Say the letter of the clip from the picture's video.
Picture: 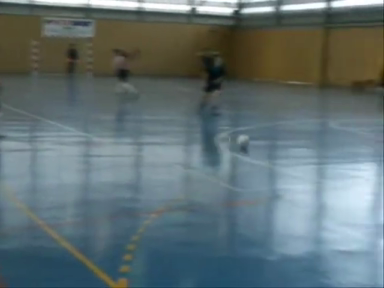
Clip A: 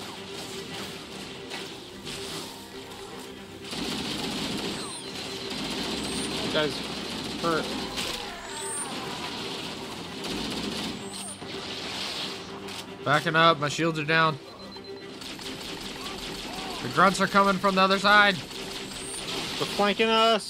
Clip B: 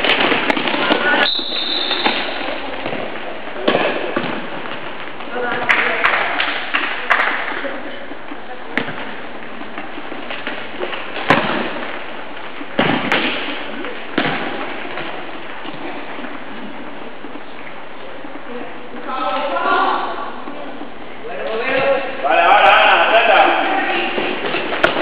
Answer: B